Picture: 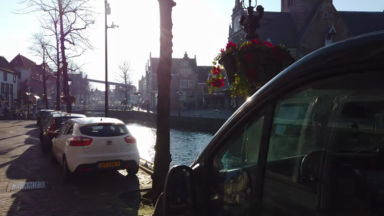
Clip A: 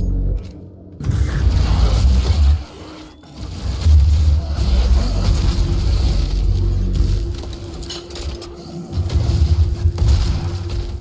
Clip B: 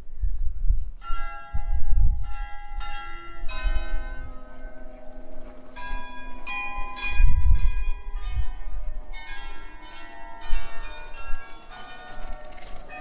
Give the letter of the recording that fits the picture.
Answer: B